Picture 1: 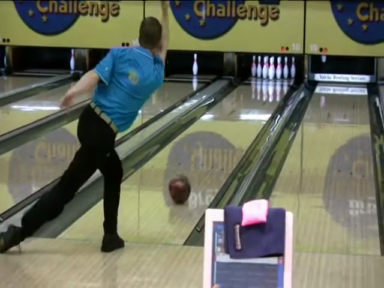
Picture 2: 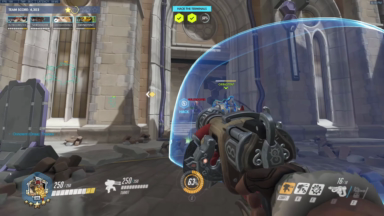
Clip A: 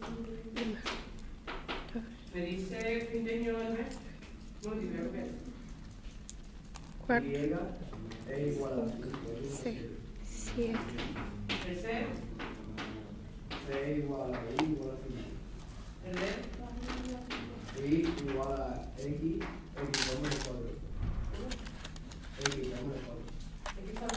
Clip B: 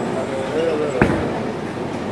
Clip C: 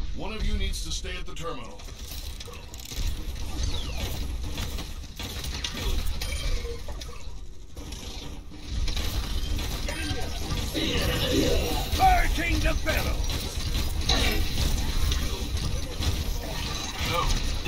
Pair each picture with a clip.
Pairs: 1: B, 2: C